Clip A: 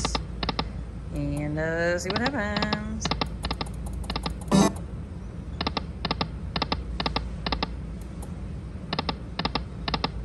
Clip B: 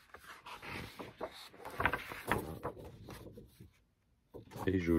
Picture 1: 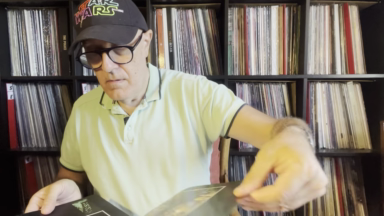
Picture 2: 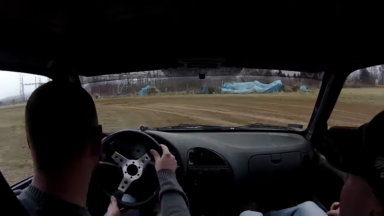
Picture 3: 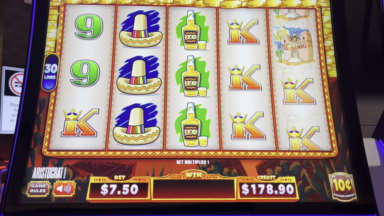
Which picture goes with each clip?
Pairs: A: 3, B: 1